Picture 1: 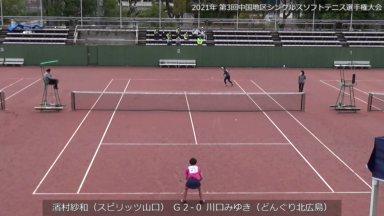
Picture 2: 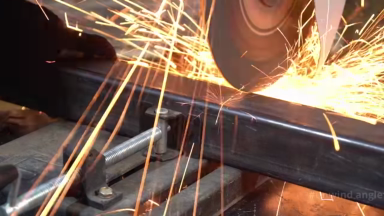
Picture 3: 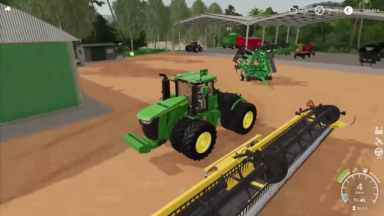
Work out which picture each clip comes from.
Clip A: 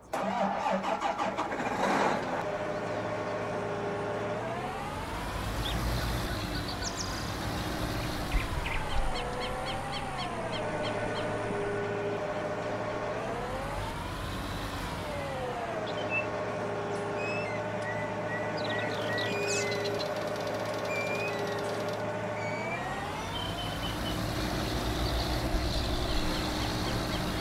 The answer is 3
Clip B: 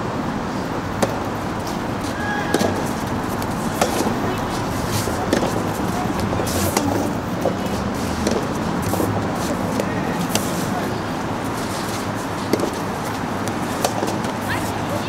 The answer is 1